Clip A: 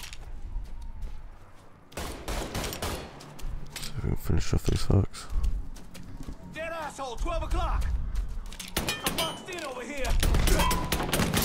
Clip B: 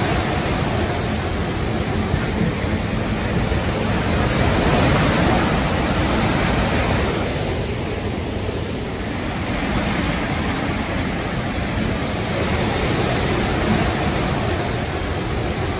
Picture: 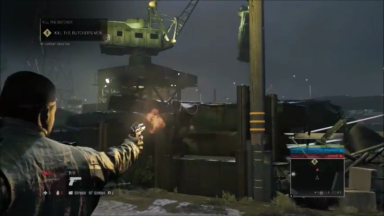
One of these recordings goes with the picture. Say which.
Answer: A